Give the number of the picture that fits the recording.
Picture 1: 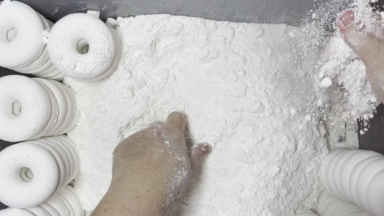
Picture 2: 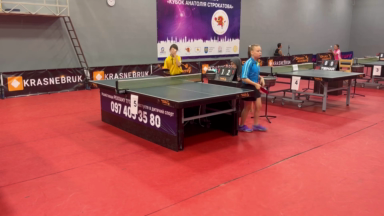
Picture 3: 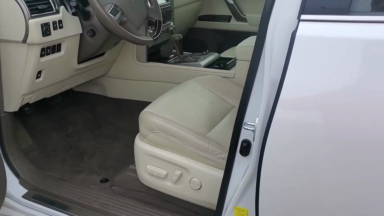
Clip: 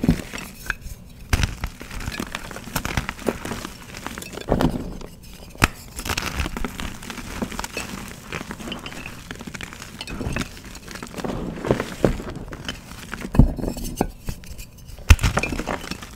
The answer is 1